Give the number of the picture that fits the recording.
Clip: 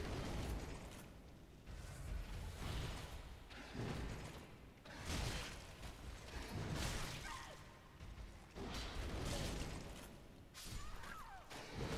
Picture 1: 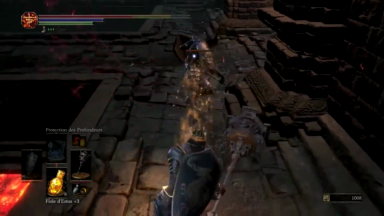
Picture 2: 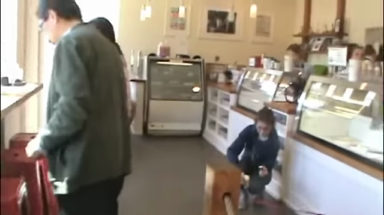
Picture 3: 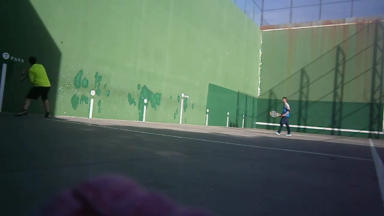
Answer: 1